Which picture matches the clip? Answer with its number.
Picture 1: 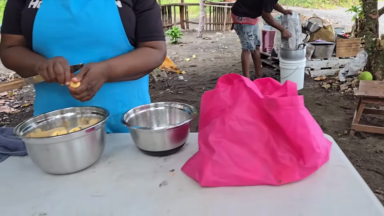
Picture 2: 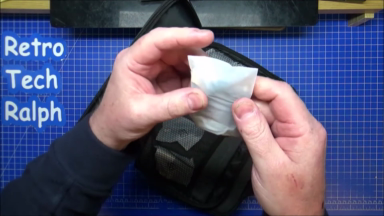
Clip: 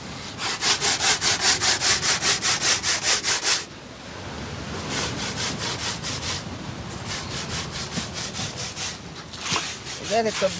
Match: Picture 1